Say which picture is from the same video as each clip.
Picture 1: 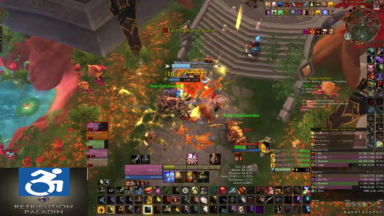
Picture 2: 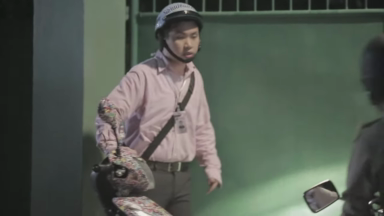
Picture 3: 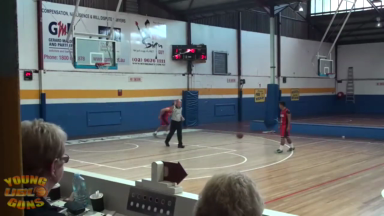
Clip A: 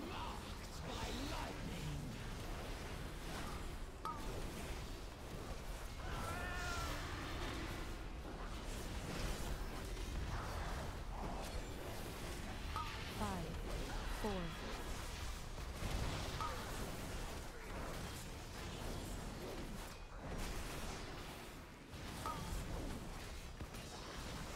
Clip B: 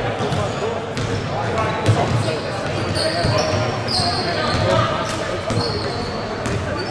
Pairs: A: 1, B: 3